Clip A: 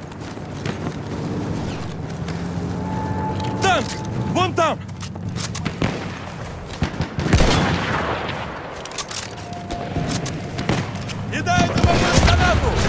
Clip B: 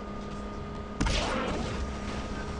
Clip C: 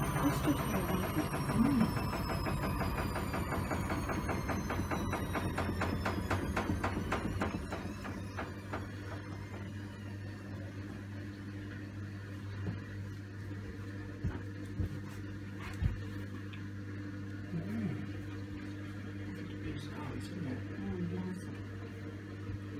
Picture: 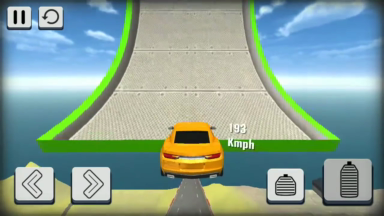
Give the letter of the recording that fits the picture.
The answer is B